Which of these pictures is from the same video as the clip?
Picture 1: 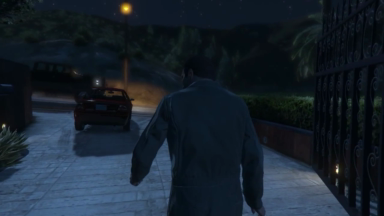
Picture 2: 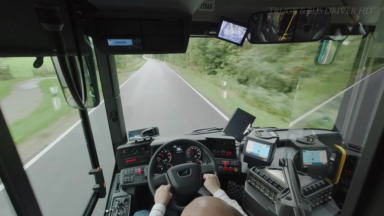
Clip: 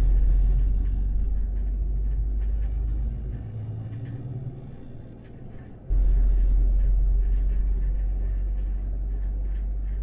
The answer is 2